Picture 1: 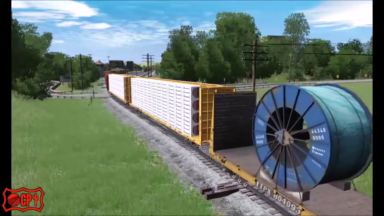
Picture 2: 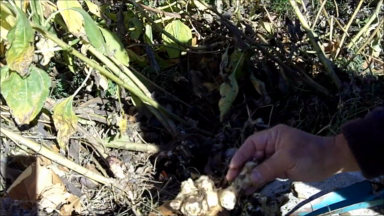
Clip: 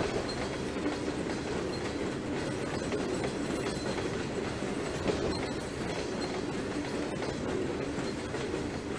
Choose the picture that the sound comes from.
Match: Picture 1